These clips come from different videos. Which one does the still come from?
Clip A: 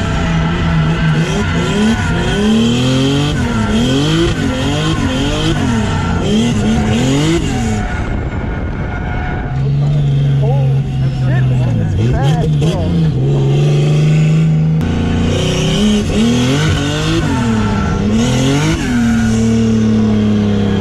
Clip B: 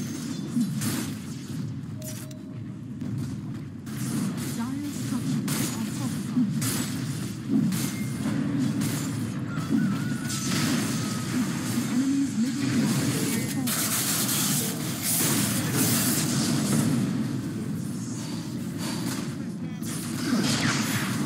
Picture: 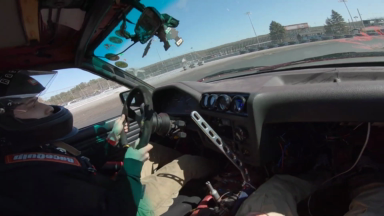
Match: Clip A